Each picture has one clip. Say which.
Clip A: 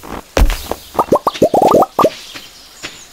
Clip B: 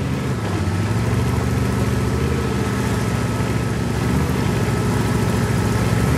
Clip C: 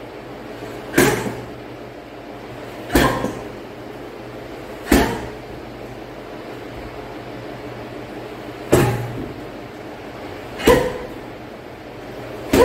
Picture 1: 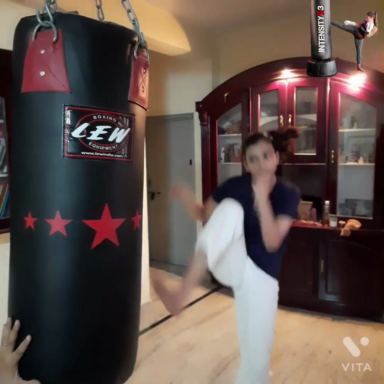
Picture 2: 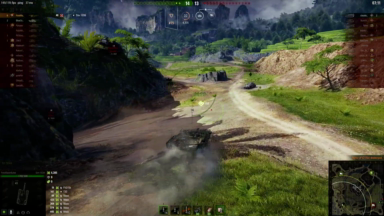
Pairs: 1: C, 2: B